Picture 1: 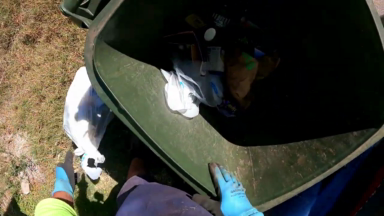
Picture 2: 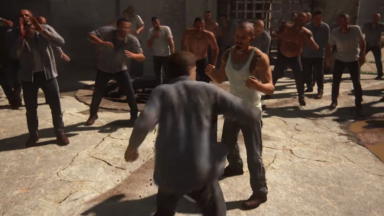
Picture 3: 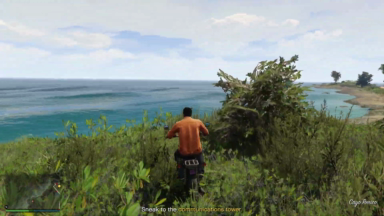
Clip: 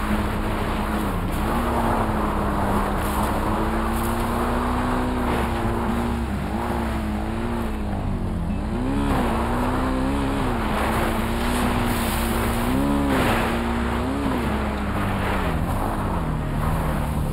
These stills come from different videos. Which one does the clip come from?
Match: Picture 3